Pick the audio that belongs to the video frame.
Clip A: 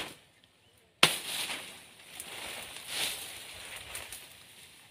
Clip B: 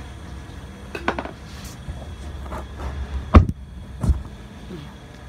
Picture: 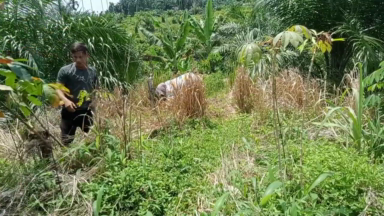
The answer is A